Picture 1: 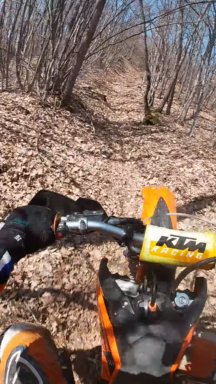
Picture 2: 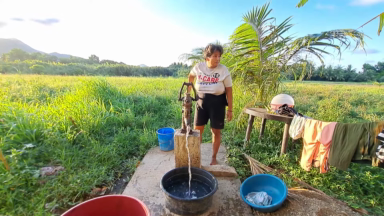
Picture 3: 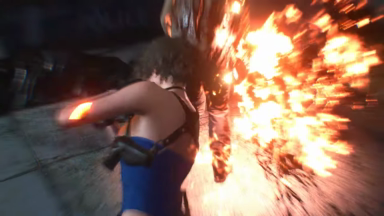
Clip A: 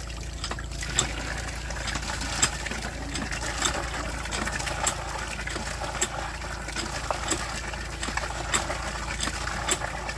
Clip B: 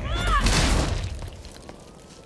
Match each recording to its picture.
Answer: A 2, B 3